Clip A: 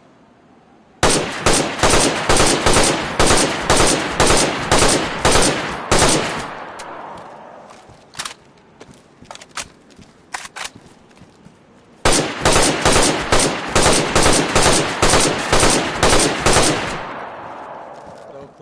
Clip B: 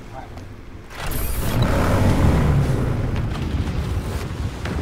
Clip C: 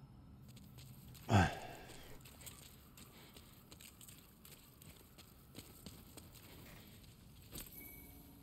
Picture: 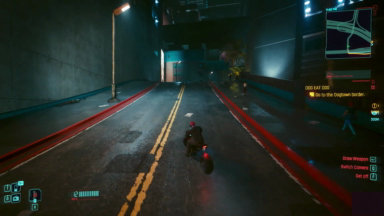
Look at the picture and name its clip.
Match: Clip B